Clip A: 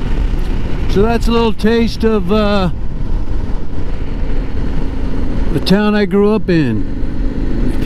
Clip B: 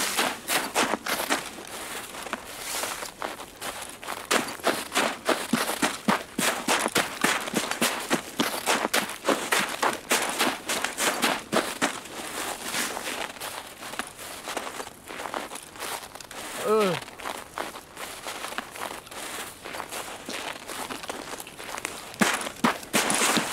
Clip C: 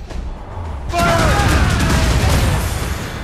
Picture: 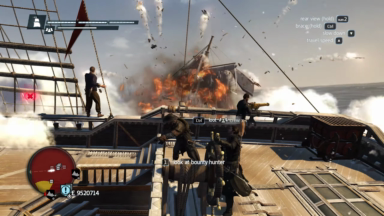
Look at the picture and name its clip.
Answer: C